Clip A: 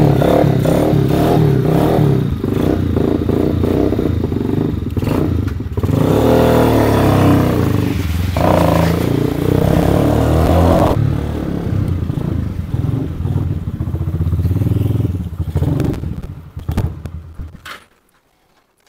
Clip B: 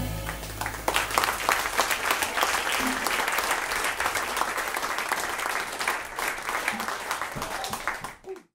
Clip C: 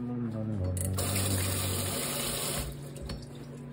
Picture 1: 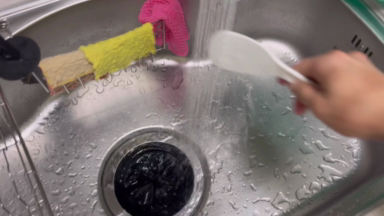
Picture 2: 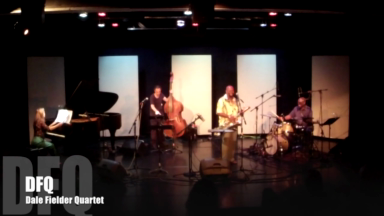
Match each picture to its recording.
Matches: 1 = C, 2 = B